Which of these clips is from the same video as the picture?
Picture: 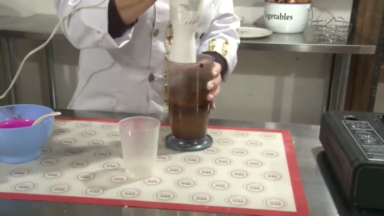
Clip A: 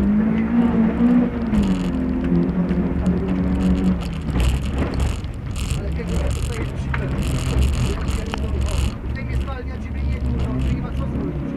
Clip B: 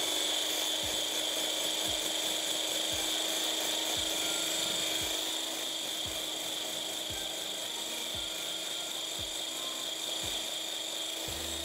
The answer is B